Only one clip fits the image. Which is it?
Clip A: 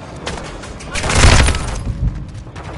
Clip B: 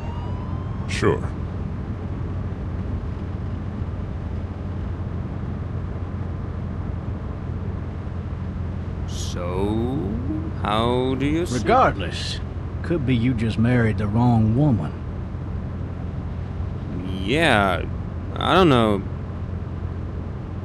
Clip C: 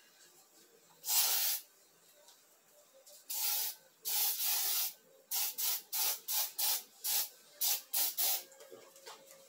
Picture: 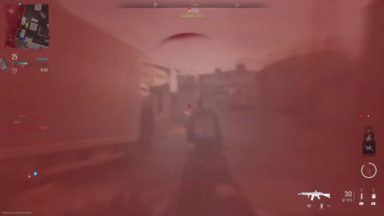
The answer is A